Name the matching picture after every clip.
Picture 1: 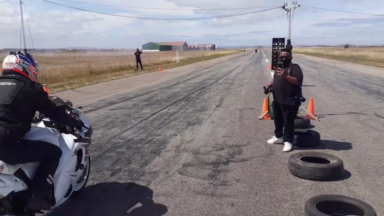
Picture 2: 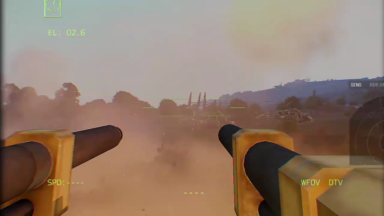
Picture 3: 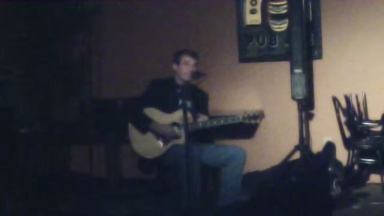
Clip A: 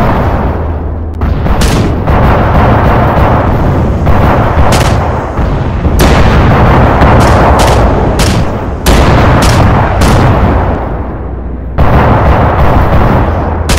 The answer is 2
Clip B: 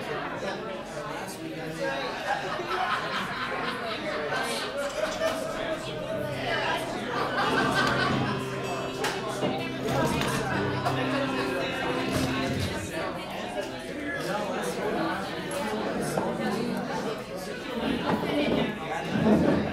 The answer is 3